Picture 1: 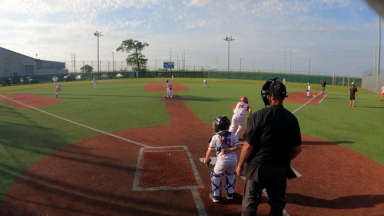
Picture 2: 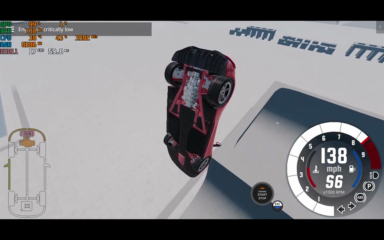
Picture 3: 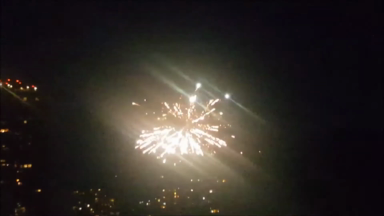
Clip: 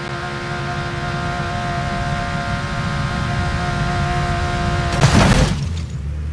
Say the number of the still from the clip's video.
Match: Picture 2